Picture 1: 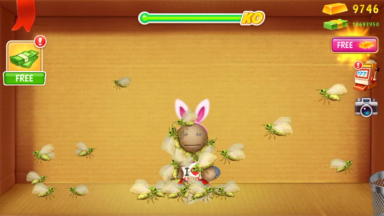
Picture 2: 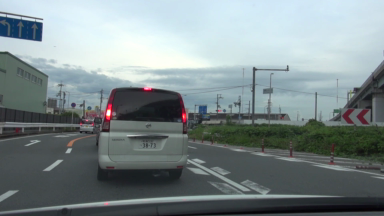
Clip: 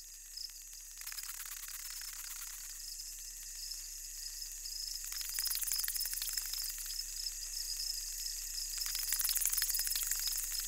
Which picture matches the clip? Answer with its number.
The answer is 1